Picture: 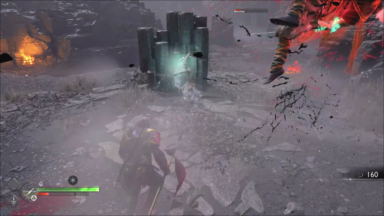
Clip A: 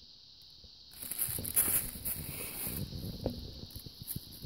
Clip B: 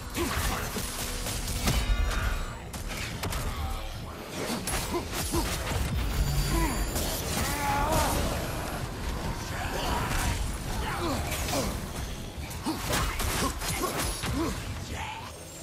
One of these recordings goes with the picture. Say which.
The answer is B